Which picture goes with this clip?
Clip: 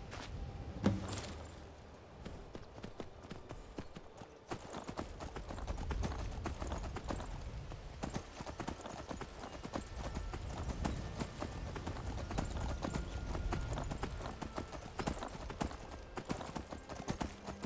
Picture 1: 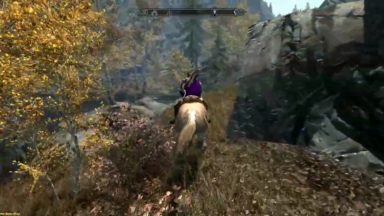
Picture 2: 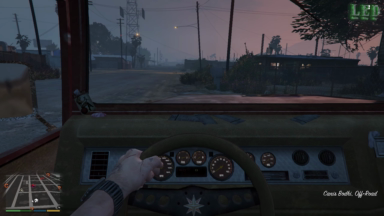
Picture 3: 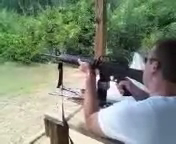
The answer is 1